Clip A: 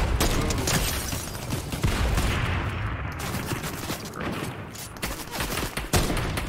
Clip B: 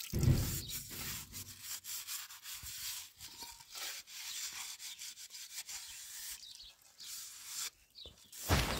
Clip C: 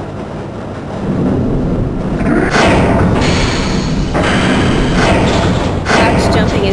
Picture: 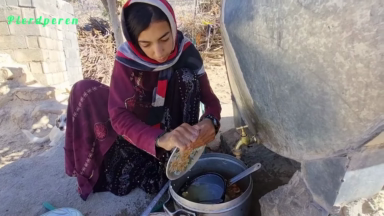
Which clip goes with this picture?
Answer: B